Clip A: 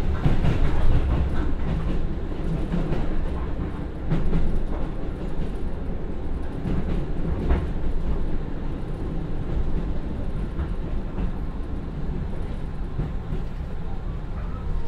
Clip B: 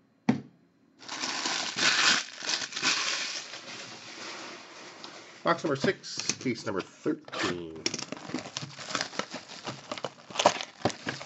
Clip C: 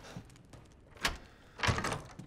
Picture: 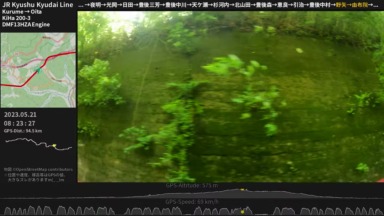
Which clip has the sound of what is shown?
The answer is A